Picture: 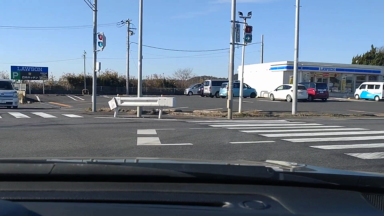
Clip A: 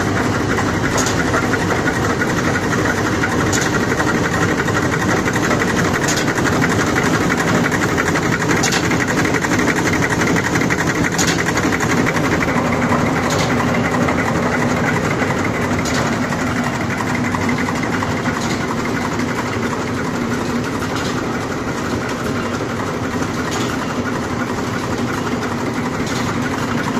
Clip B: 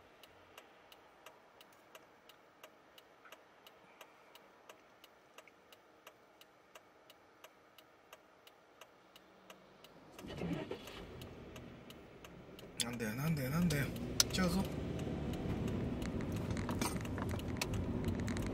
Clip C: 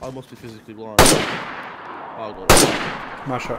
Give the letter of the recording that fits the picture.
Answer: B